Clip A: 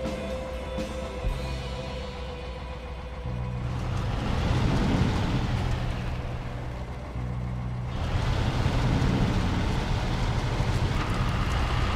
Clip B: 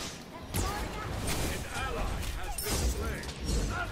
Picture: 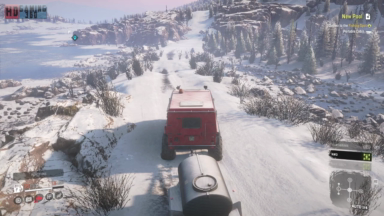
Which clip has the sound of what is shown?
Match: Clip A